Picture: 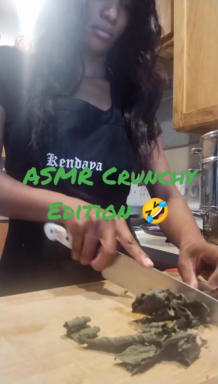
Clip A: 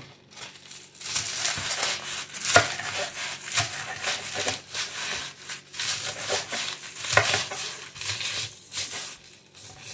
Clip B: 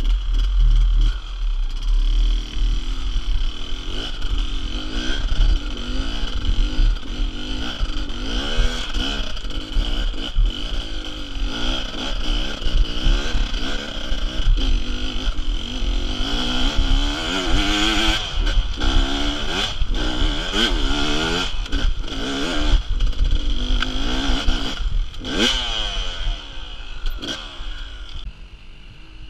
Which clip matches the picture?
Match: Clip A